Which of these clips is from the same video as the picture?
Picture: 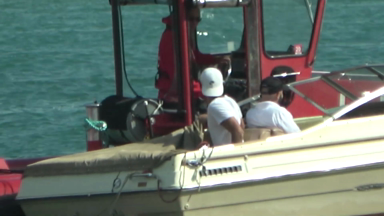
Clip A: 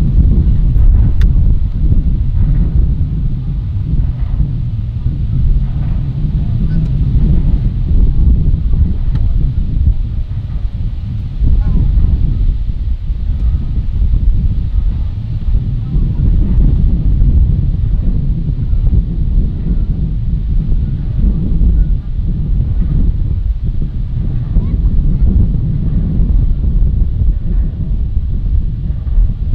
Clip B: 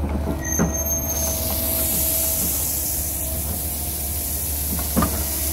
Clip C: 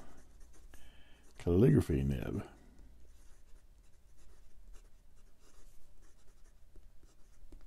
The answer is A